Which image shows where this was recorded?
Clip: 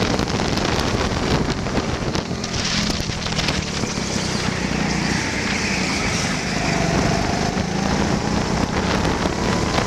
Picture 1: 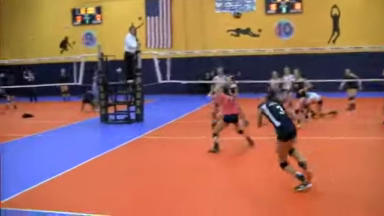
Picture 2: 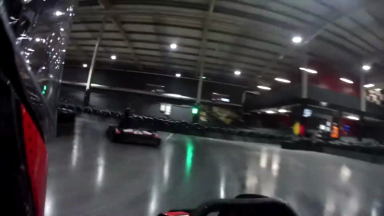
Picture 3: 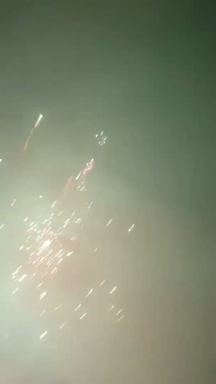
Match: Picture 2